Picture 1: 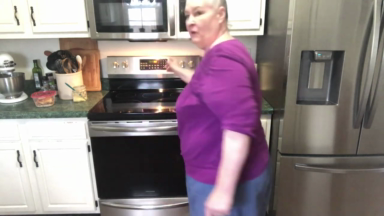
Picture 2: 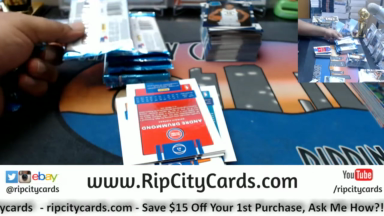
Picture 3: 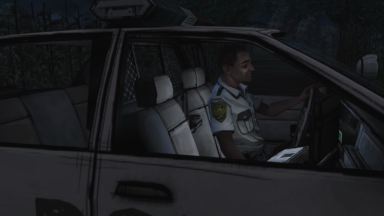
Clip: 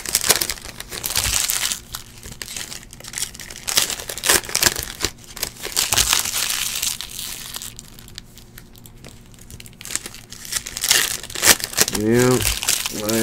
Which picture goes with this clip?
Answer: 2